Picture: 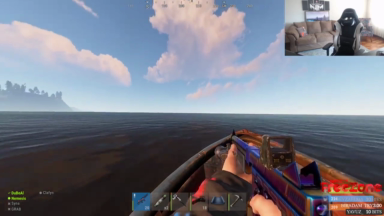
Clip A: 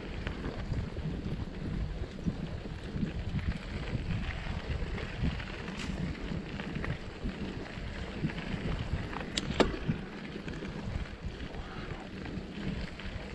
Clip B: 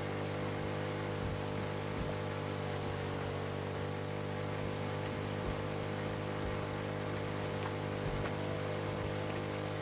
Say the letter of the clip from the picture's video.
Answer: B